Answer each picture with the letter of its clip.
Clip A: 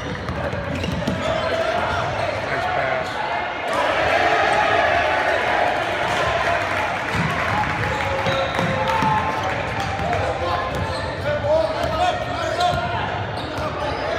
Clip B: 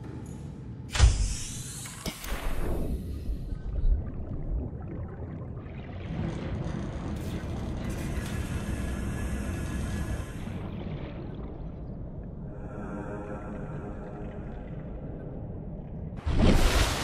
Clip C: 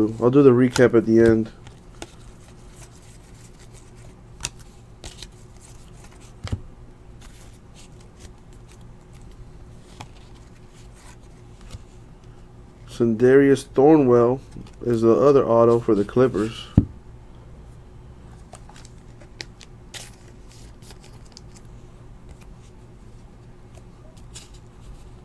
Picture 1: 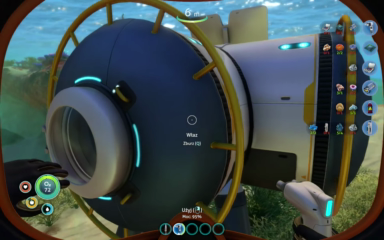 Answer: B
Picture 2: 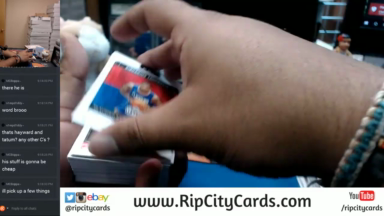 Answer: C